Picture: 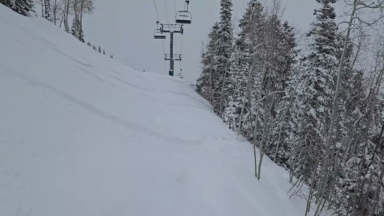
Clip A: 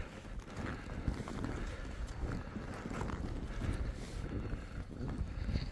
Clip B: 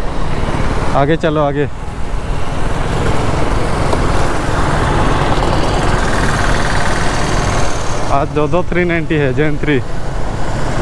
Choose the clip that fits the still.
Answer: A